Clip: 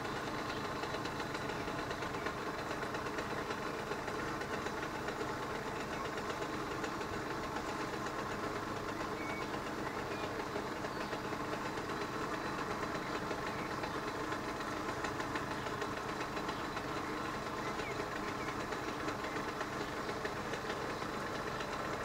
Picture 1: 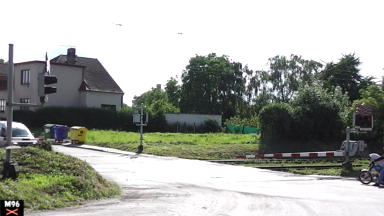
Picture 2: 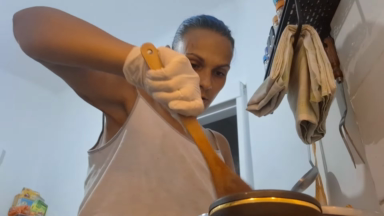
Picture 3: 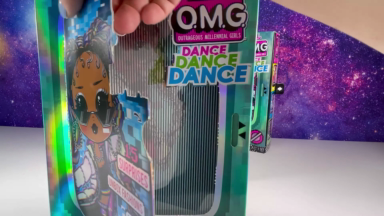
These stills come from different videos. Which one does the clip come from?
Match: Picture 1